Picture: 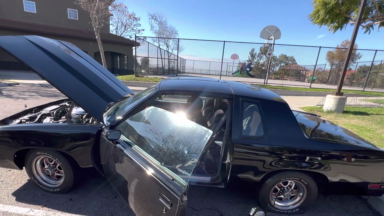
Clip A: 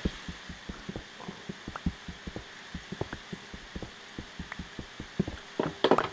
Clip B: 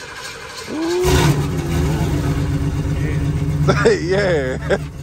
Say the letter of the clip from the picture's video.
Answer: B